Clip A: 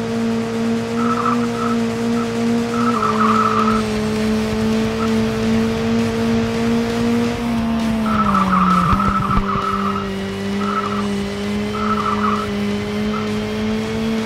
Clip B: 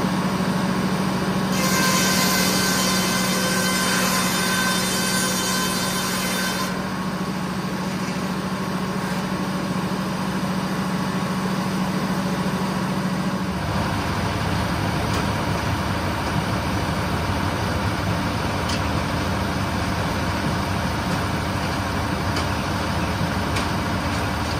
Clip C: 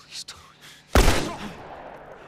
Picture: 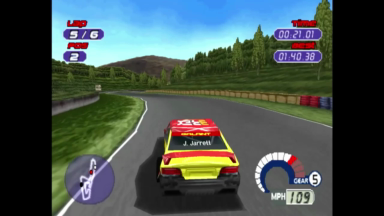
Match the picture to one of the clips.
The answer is A